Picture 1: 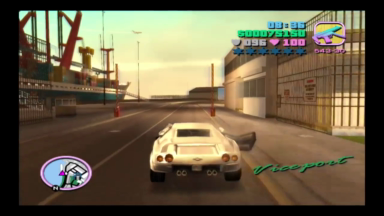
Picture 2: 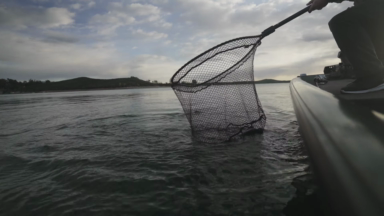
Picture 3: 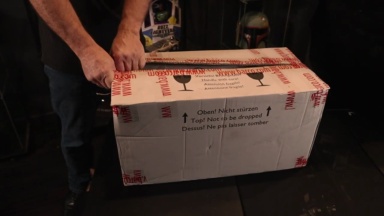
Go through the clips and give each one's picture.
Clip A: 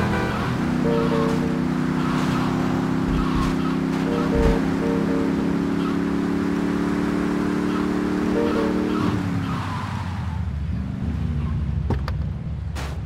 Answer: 1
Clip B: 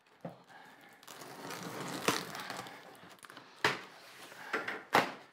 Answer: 3